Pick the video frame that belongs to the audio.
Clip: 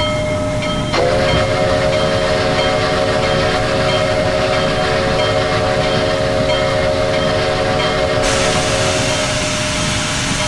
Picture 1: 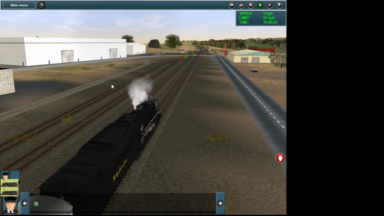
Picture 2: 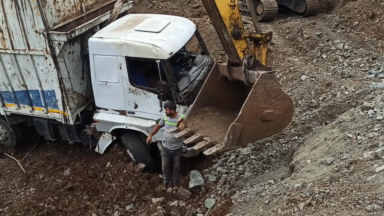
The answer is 1